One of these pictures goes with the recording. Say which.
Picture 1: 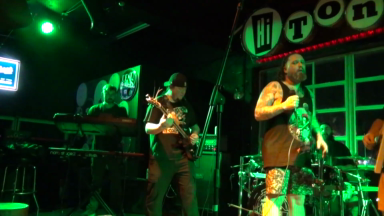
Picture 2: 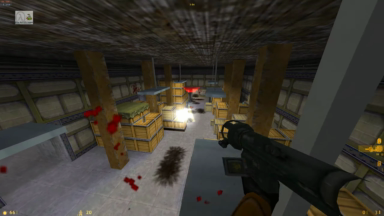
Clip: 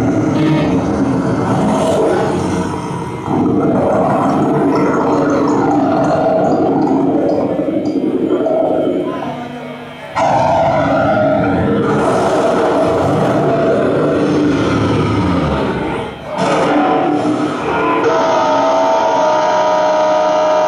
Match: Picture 1